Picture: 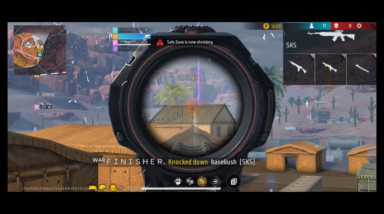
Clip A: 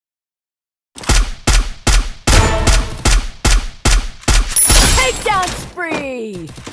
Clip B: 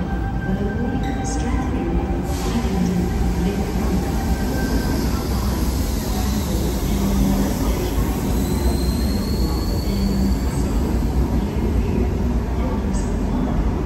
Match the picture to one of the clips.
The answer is A